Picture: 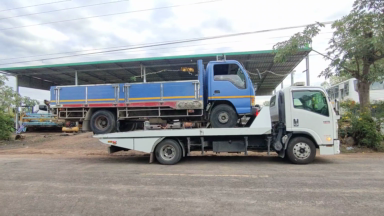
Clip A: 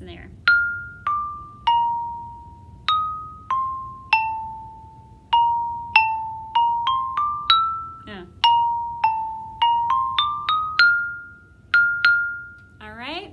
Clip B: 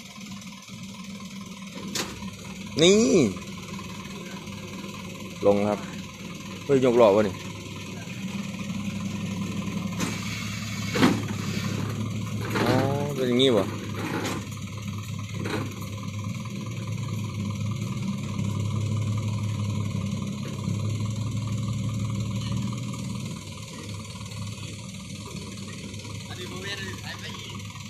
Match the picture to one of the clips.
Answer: B